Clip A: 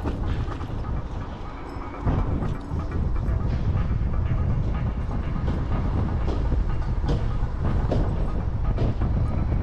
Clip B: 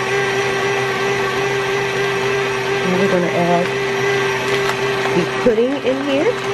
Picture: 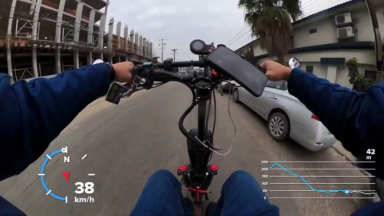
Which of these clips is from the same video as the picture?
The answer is A